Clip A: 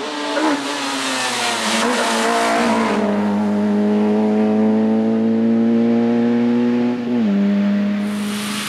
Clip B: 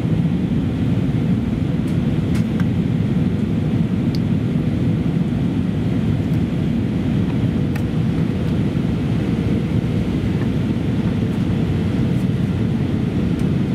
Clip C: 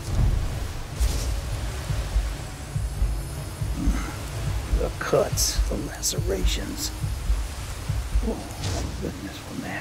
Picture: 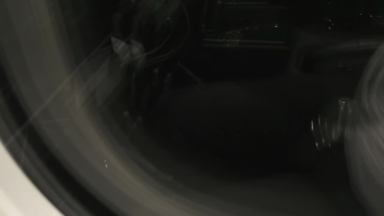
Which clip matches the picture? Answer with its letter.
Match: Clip B